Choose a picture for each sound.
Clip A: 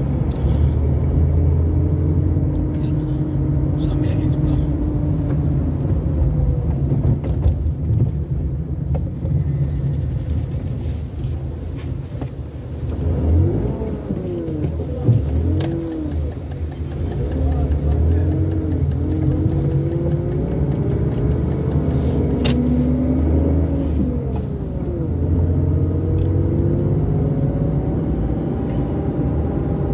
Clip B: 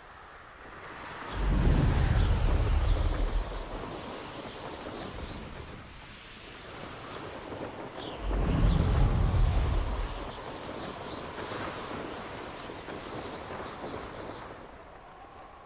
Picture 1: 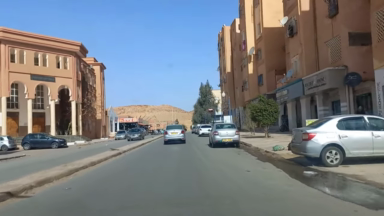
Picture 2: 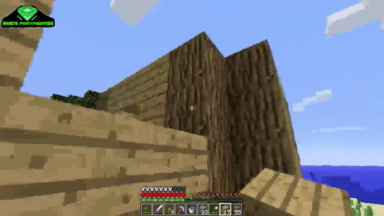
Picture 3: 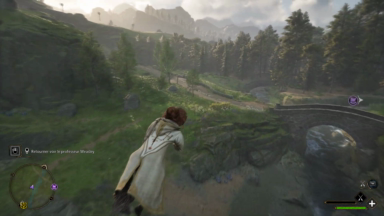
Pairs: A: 1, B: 3